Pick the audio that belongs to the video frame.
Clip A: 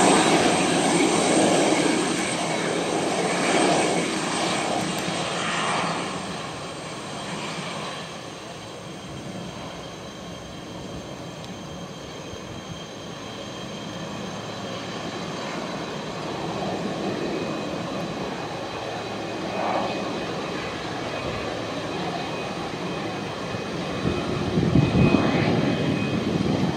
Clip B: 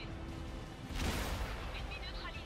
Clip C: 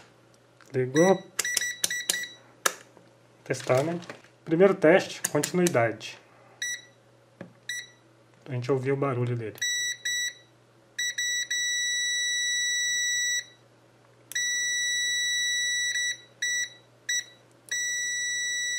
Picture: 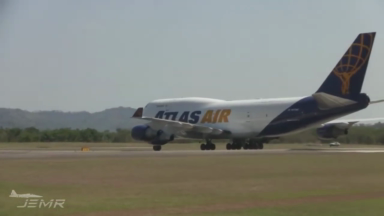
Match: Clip A